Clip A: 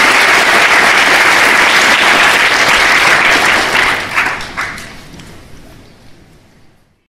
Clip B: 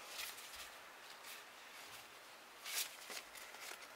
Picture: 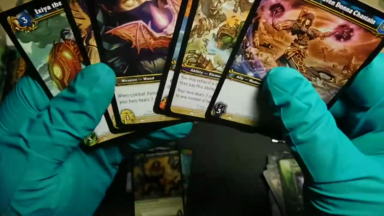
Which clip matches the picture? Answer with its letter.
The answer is B